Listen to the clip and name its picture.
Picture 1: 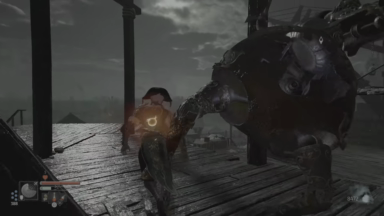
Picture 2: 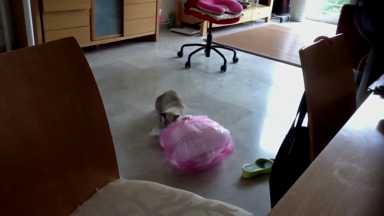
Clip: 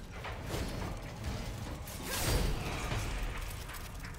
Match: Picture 1